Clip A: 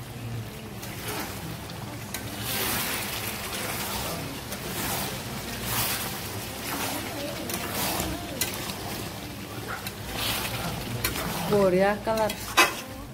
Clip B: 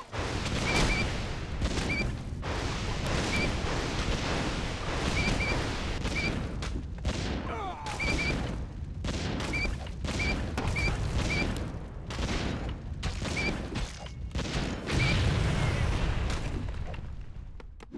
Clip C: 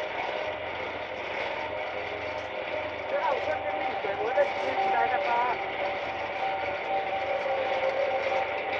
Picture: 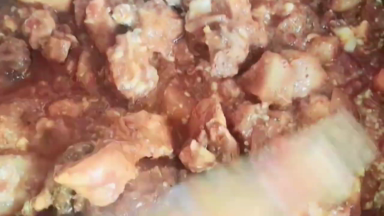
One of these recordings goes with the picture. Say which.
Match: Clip A